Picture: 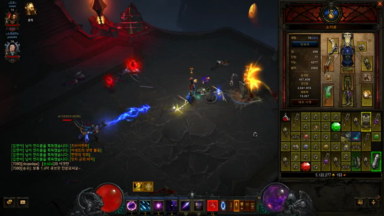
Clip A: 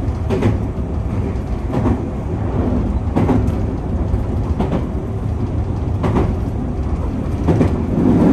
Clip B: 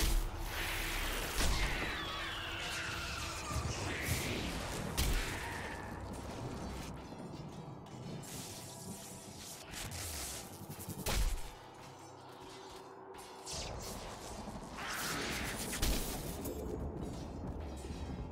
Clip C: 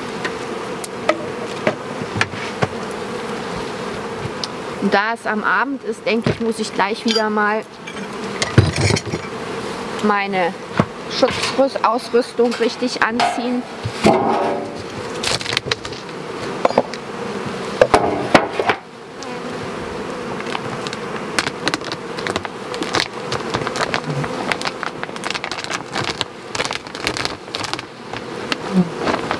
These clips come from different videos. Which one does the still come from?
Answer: B